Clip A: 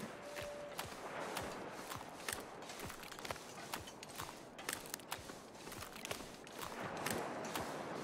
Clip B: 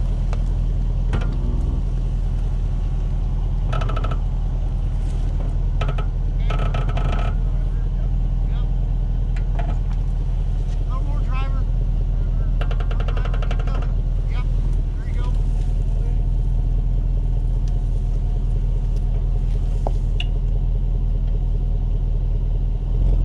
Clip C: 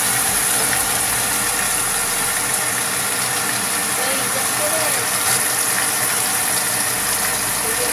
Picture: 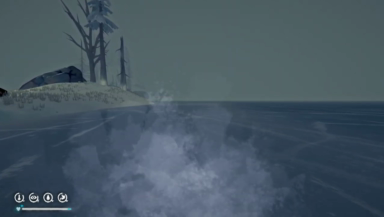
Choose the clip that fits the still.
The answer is A